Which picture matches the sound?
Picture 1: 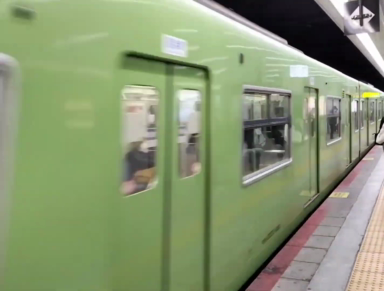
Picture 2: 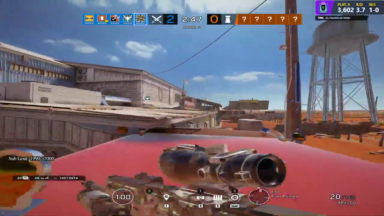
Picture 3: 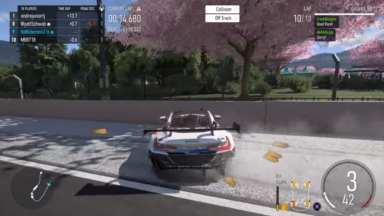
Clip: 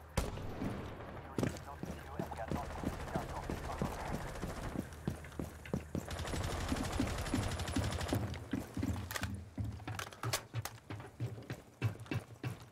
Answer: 2